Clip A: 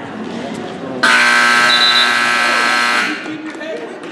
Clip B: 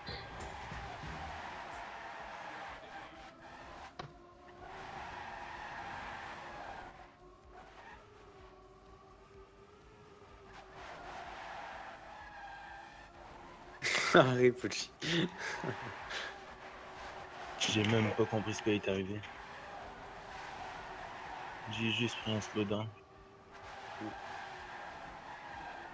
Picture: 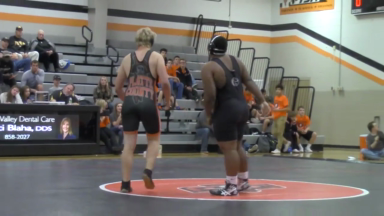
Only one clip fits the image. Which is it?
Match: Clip A